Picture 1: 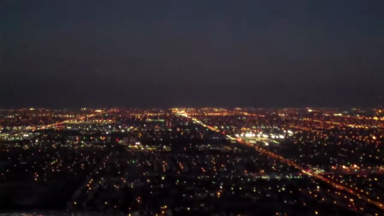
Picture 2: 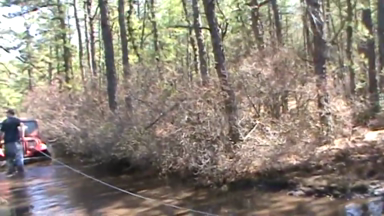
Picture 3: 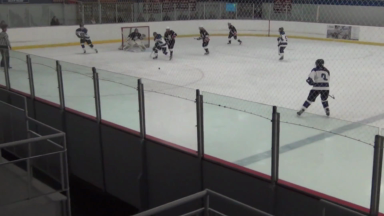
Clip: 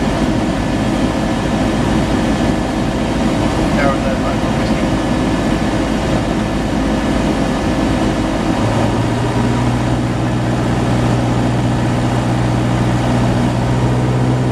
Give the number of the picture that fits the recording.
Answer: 1